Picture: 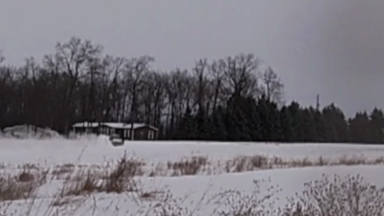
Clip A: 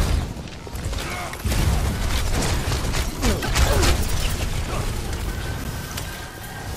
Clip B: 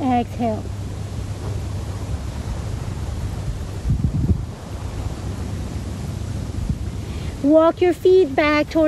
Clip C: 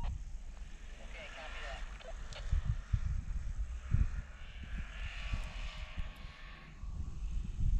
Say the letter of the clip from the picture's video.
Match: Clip C